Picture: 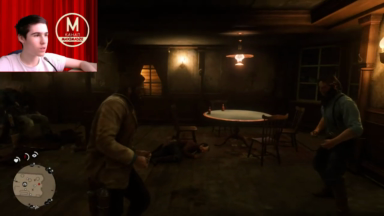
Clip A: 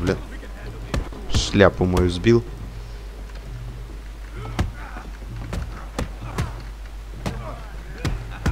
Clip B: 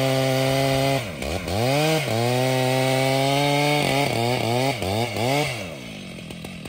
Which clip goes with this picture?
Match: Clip A